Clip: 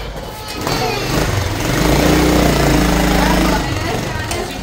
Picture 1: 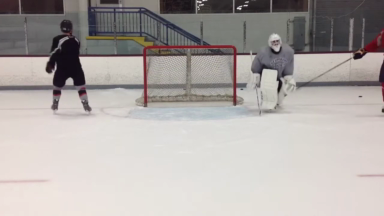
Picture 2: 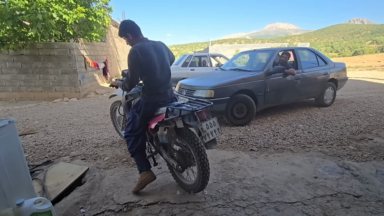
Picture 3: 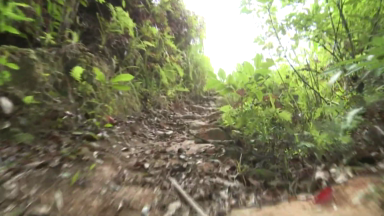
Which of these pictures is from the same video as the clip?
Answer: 2